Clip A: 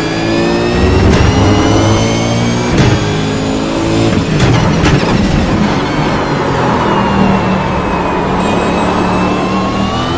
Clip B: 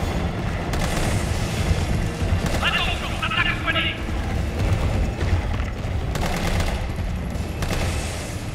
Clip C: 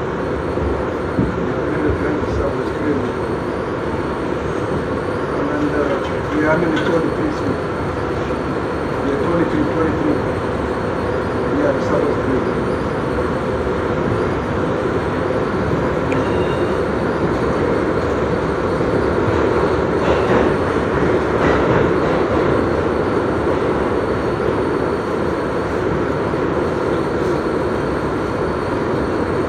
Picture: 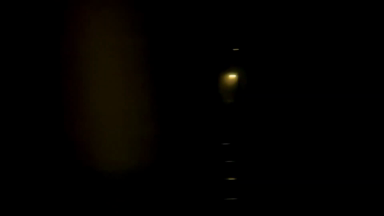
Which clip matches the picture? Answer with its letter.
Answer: C